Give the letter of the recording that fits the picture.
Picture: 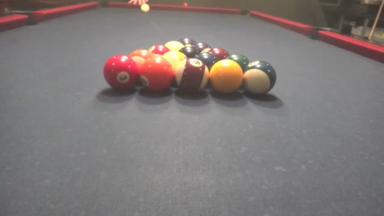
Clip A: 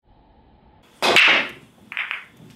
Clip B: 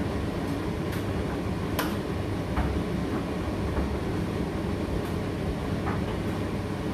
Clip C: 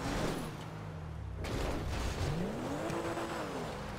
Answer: A